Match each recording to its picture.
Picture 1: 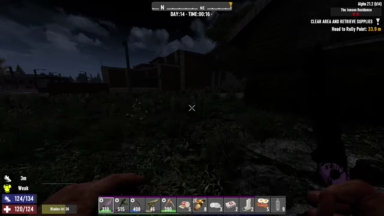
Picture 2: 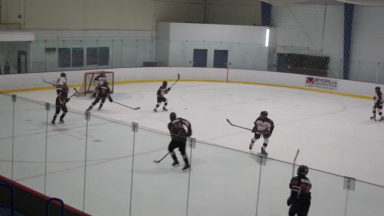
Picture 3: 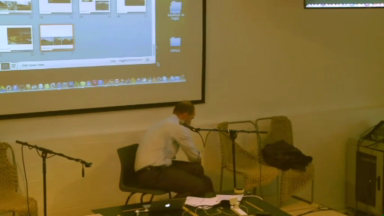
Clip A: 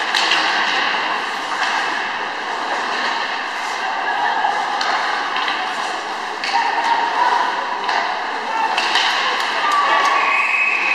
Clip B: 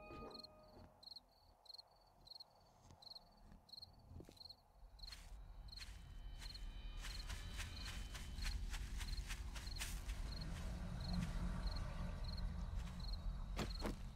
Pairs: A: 2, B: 1